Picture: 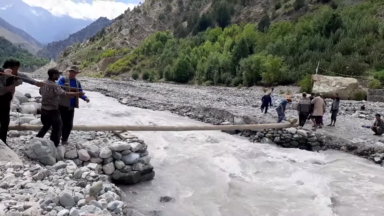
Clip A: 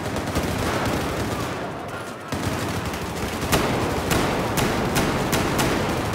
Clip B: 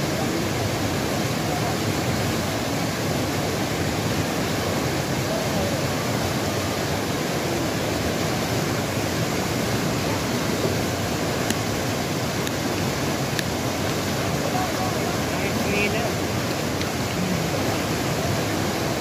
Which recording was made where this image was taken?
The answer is B